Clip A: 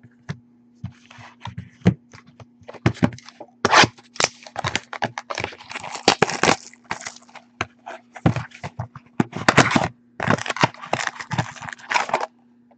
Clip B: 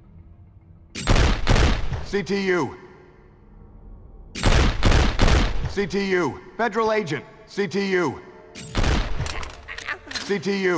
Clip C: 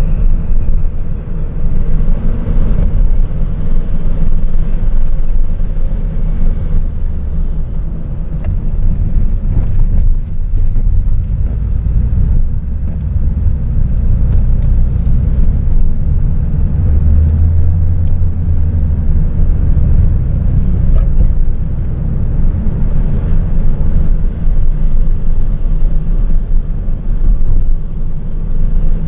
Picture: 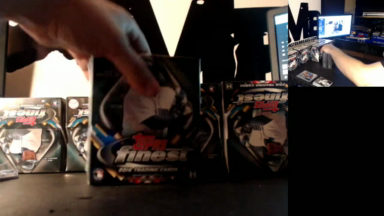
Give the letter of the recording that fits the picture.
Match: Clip A